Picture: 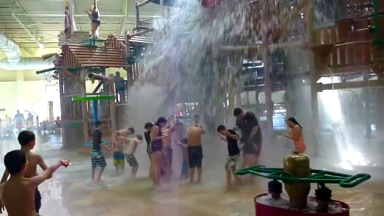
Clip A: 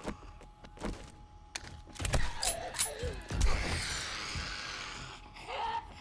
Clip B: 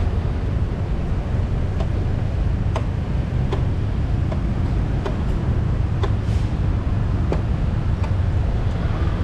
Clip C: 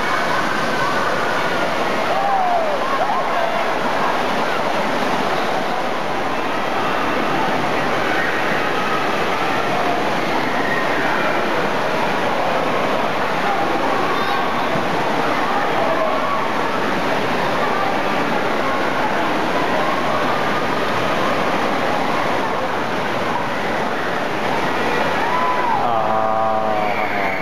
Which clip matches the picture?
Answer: C